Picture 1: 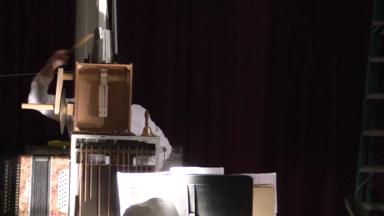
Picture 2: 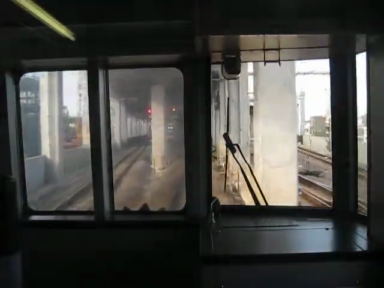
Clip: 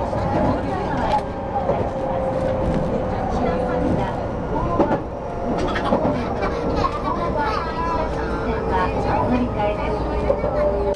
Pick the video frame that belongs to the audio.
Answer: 2